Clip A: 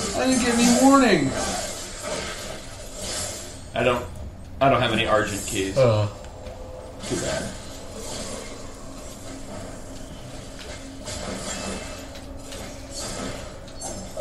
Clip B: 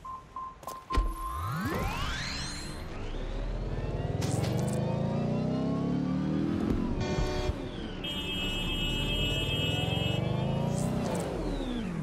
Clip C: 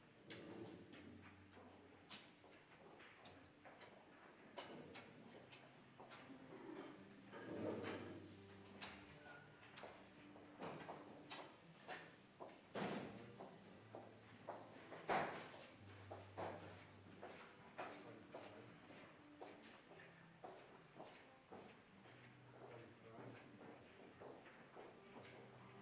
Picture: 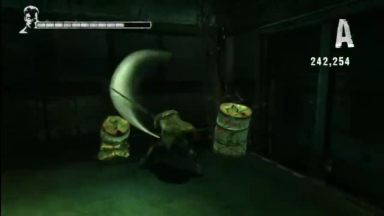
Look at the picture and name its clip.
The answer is A